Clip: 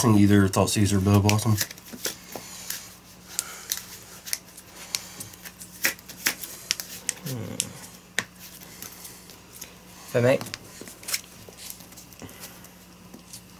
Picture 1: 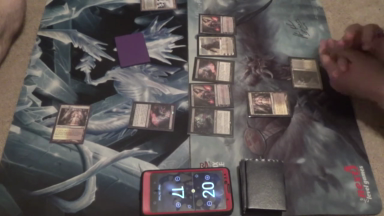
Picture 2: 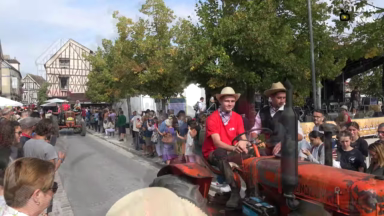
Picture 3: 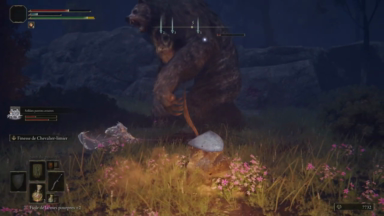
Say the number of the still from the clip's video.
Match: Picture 1